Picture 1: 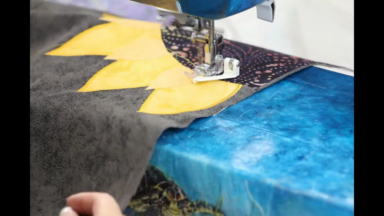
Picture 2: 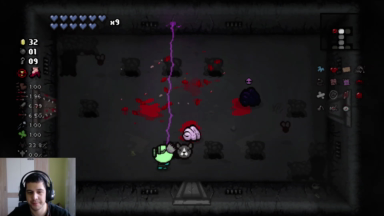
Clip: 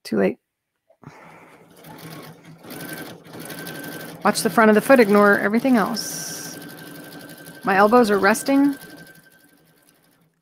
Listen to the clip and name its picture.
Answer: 1